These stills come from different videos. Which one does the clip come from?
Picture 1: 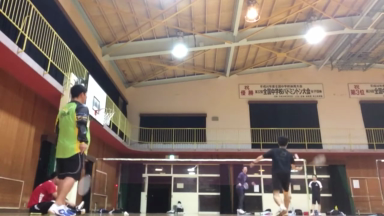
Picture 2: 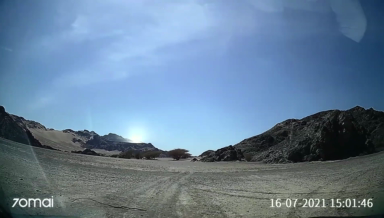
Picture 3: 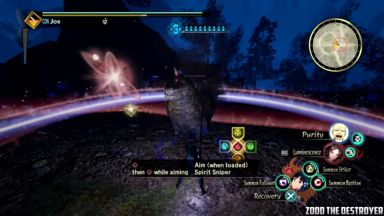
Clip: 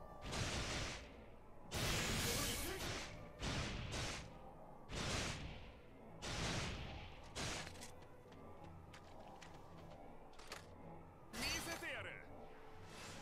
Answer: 3